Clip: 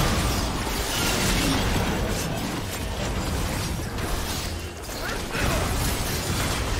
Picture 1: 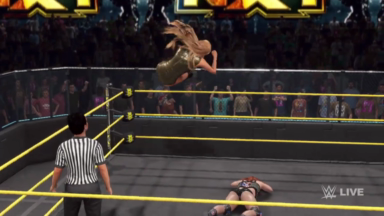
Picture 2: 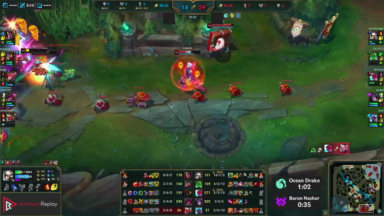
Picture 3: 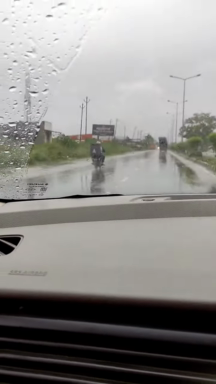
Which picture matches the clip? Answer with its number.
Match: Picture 2